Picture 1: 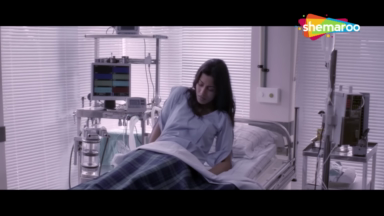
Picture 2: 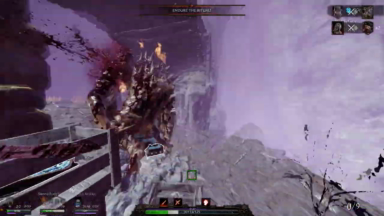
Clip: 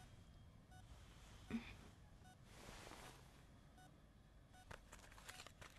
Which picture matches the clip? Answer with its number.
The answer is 1